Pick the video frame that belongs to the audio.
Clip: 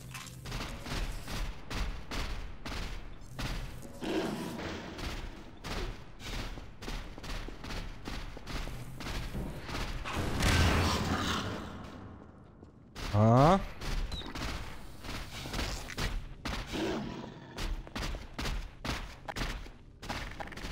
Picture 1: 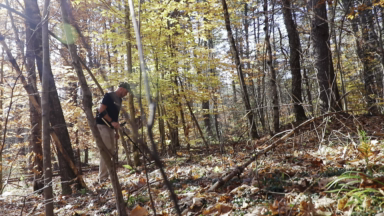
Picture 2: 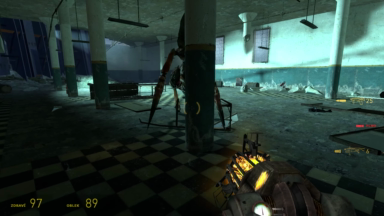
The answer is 2